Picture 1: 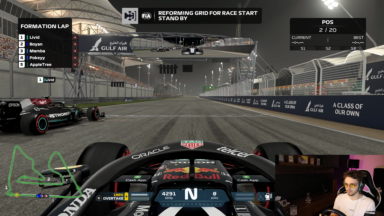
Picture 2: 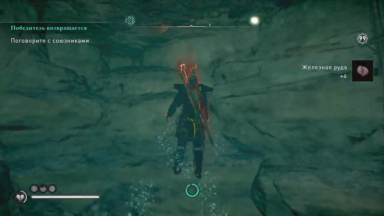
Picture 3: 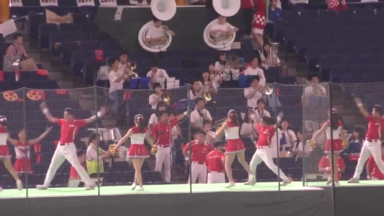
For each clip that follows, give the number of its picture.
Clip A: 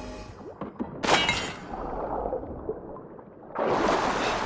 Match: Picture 2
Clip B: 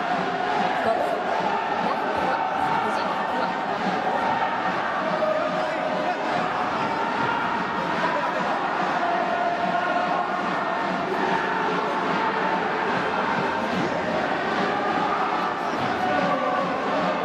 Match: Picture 3